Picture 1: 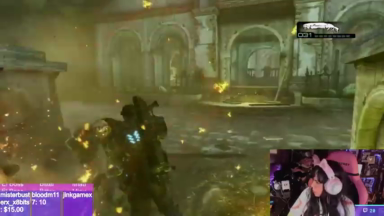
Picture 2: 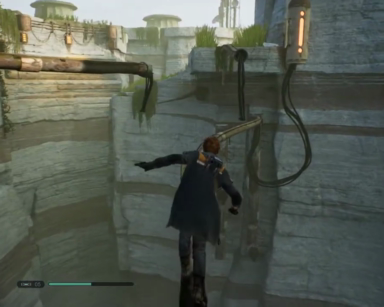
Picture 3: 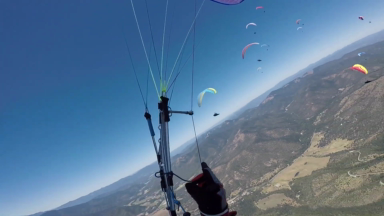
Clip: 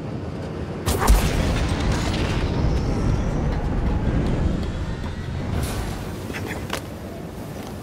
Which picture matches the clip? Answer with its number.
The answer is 2